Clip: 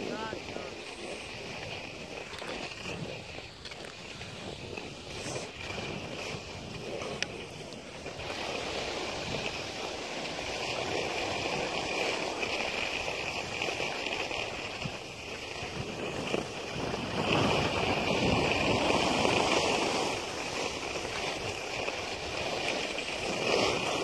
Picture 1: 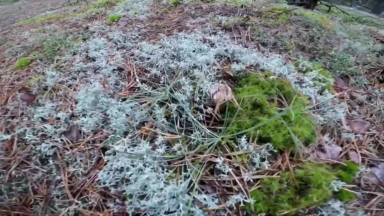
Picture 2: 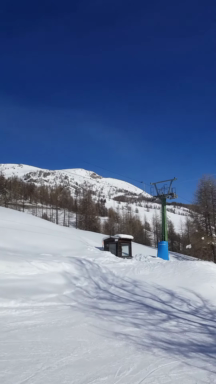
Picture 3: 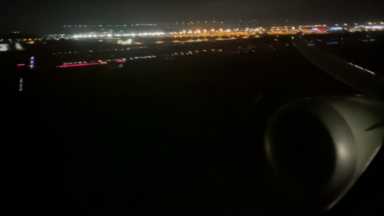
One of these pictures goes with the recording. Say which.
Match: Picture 2